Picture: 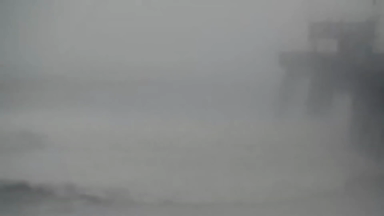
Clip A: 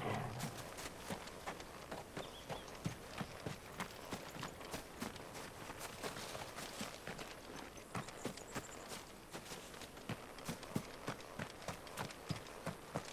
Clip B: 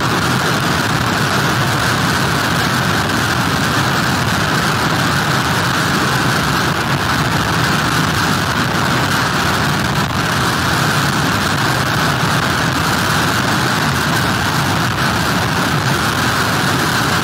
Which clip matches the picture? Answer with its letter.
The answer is B